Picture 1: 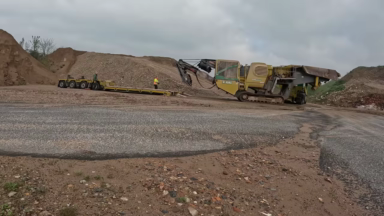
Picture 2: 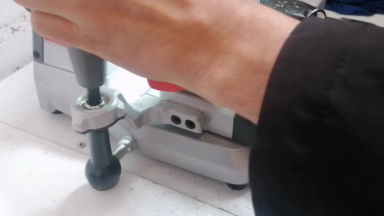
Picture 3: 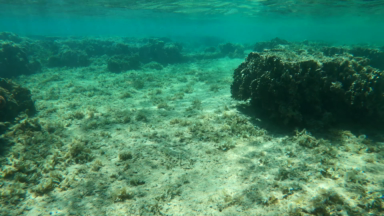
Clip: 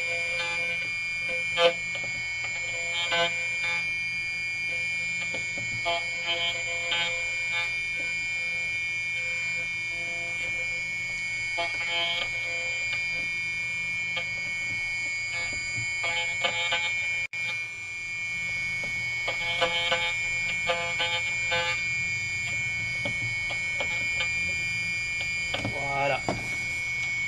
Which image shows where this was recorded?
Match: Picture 2